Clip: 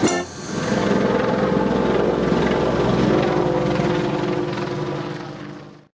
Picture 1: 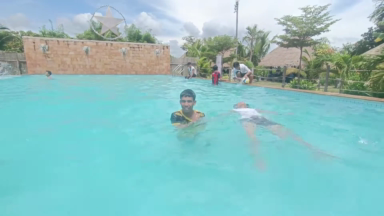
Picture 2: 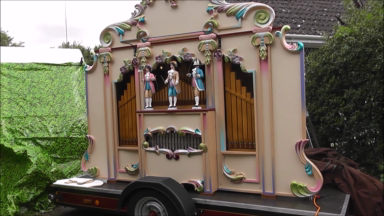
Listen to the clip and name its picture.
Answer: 2